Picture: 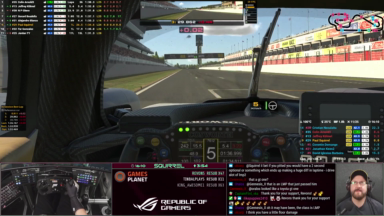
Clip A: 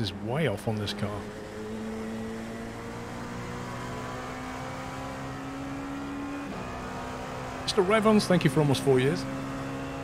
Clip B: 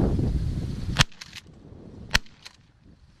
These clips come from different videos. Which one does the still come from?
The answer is A